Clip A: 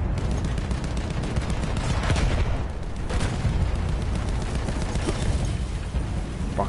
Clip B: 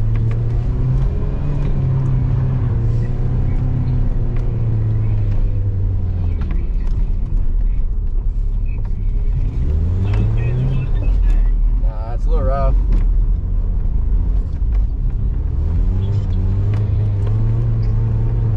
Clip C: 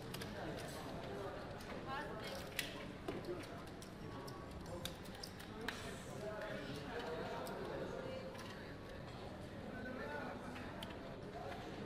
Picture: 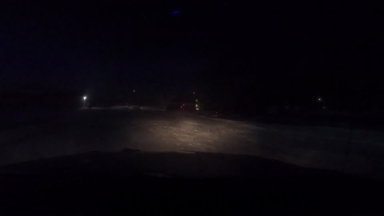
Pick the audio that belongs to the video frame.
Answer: B